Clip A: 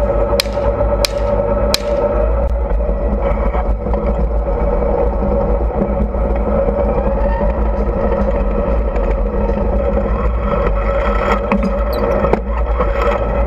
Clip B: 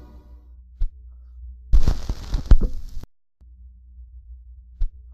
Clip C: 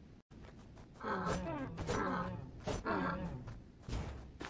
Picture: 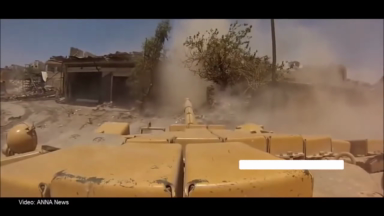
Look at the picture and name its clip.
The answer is A